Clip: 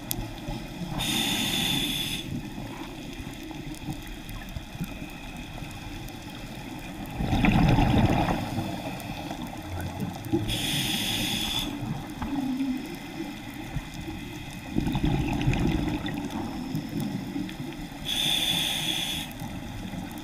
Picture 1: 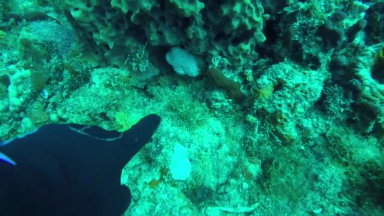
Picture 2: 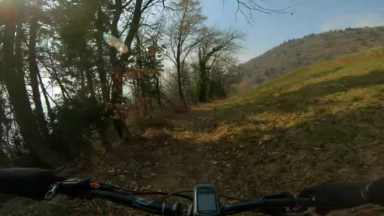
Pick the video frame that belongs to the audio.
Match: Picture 1